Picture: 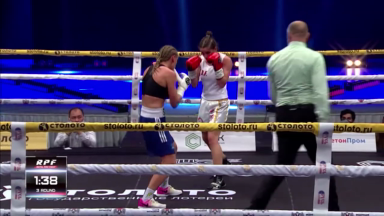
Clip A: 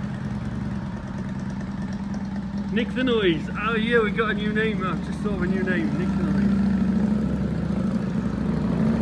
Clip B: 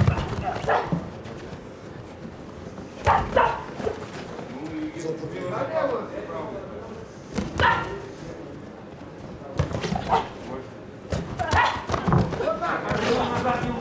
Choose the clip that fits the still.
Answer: B